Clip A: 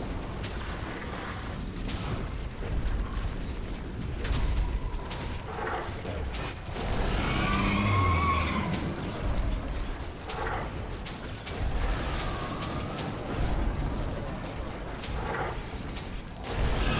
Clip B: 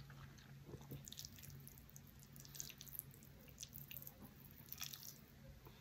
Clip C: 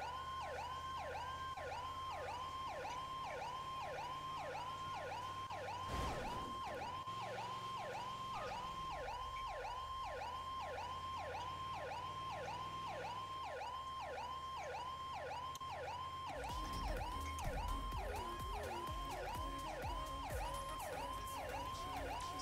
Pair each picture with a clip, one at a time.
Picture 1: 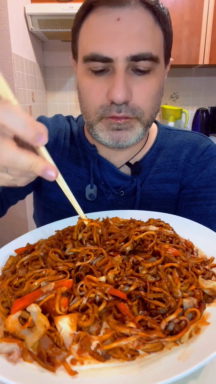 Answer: B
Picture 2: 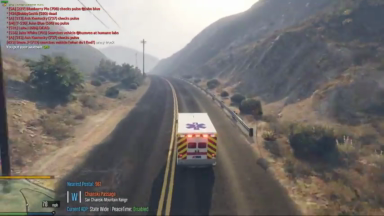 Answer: C